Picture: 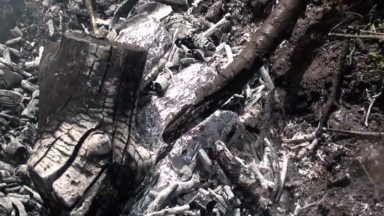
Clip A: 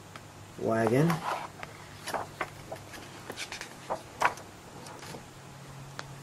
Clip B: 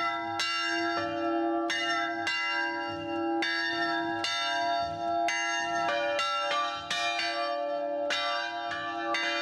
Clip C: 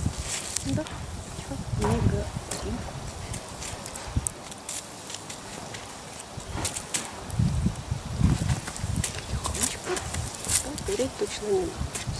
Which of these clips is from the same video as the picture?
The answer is C